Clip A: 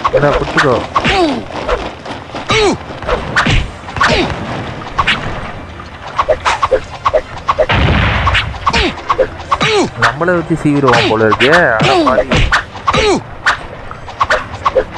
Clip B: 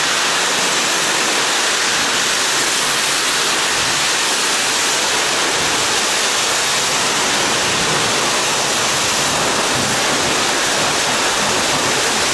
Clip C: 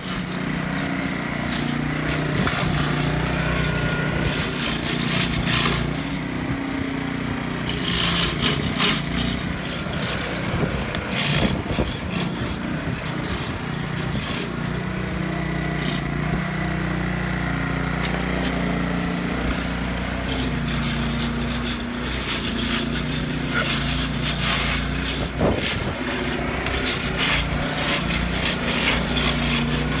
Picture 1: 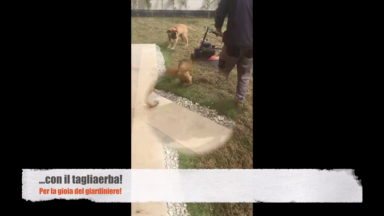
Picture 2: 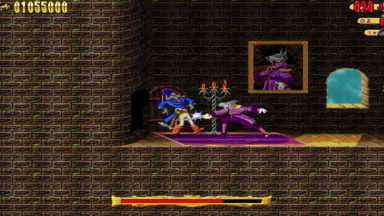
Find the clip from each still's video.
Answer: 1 C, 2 A